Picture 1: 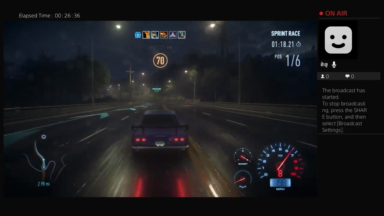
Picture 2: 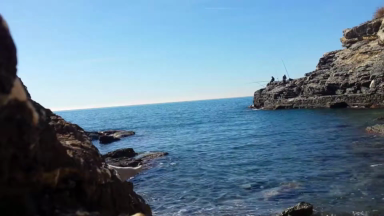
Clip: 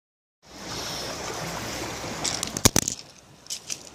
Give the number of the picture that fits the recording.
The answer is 2